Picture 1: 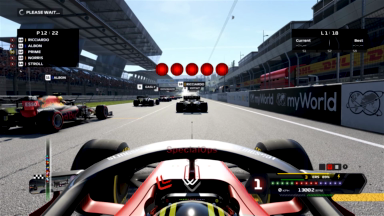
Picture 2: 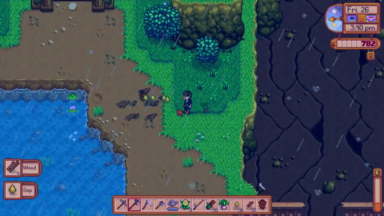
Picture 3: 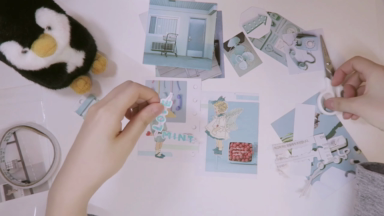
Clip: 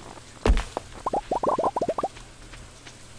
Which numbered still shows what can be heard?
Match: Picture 2